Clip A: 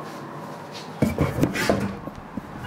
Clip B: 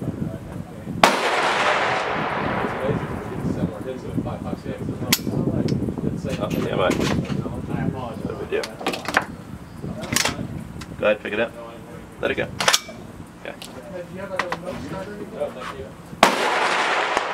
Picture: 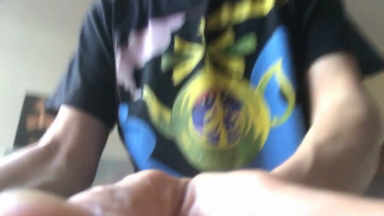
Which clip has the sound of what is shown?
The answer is A